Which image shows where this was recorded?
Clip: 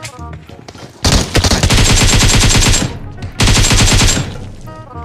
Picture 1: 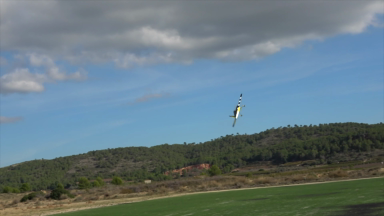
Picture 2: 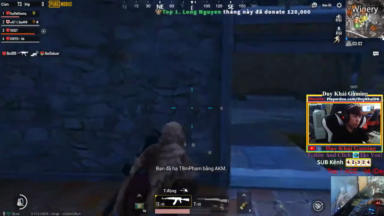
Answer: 2